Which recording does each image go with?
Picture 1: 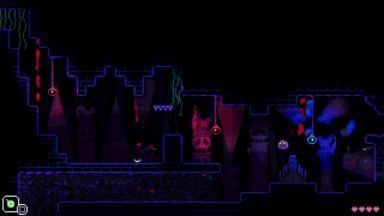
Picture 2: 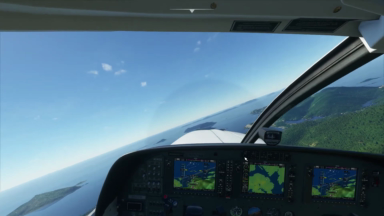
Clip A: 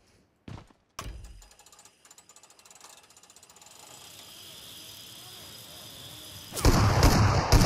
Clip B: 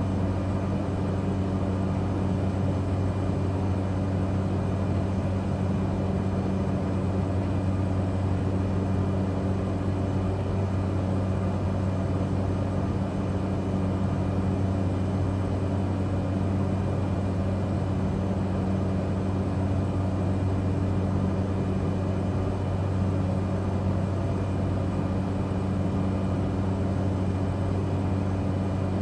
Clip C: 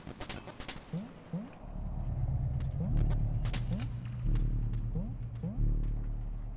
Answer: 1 C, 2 B